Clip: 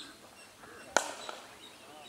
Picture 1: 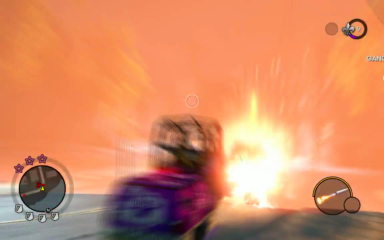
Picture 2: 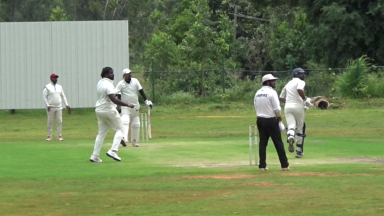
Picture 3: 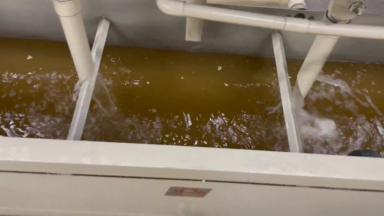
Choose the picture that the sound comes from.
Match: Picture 2